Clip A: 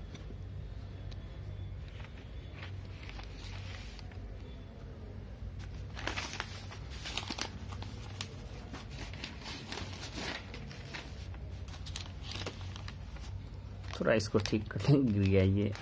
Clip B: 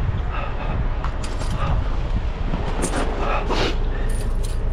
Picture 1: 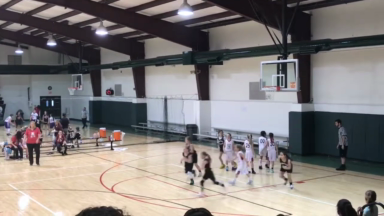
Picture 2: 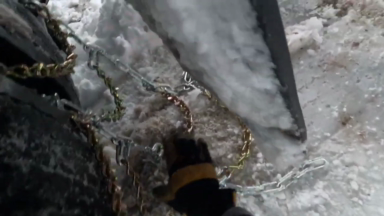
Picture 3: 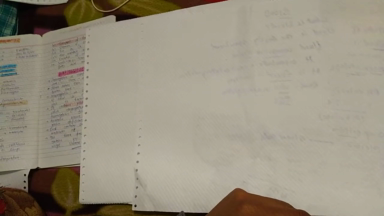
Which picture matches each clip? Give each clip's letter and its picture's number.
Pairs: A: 3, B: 2